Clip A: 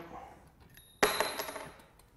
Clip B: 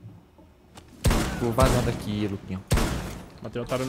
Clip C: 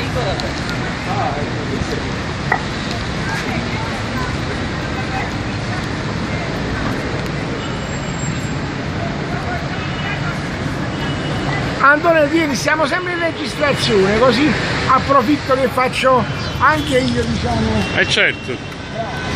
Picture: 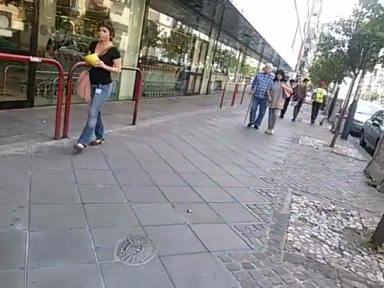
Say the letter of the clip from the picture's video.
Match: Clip C